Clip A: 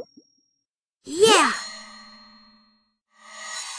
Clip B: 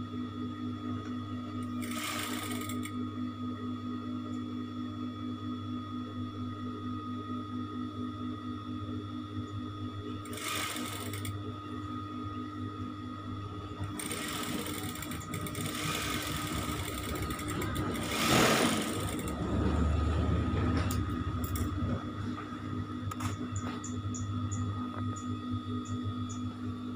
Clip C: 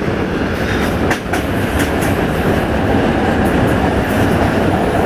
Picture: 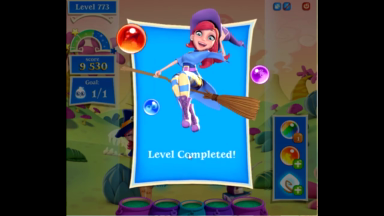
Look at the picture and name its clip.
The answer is A